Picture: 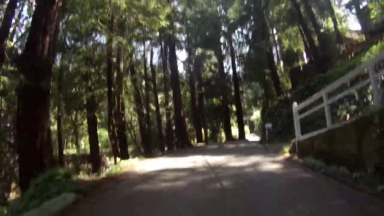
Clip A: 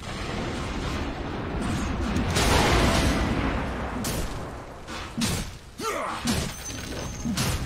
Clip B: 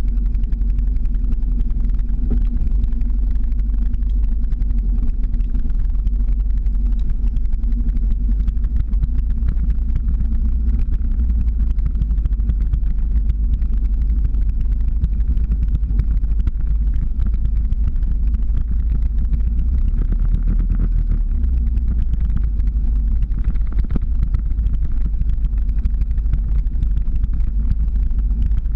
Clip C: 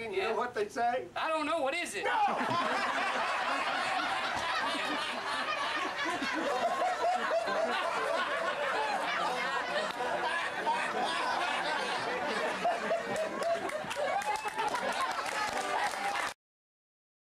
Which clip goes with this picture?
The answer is B